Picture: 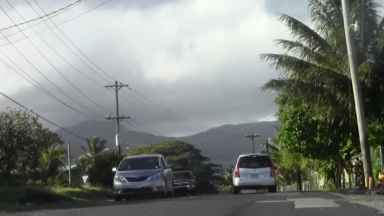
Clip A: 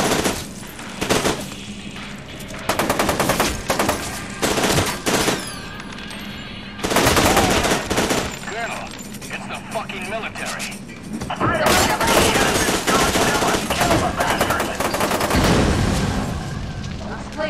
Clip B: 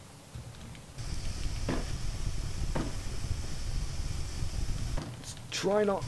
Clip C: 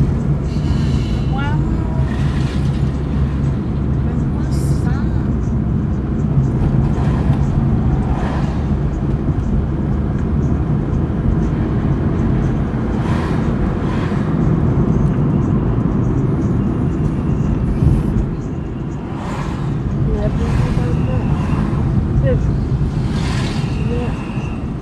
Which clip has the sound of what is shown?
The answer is C